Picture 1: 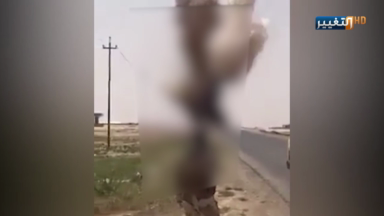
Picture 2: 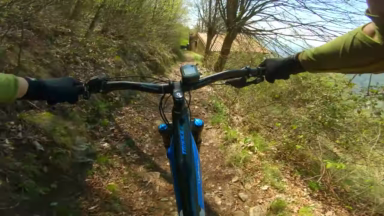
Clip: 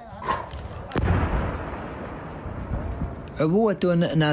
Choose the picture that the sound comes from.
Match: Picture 1